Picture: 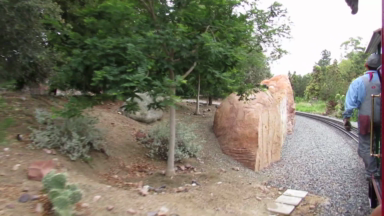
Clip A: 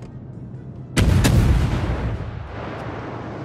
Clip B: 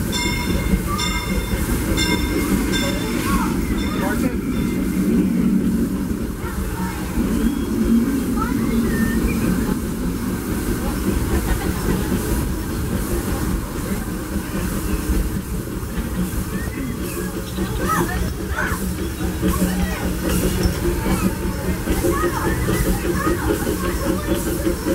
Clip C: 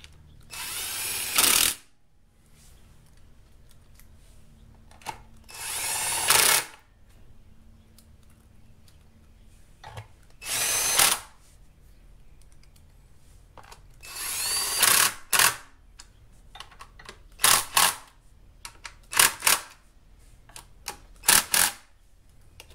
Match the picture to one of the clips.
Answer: B